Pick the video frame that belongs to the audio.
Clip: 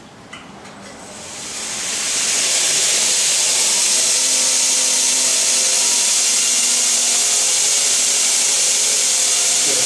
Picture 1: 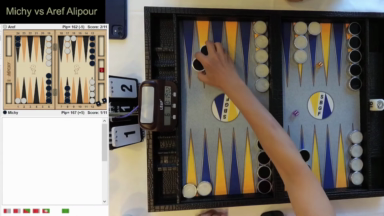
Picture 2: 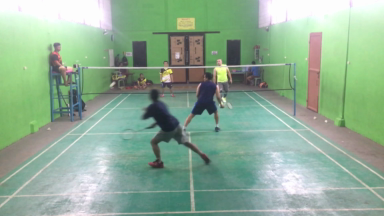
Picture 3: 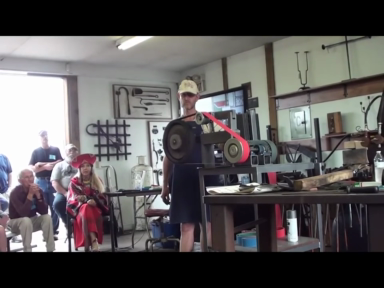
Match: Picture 3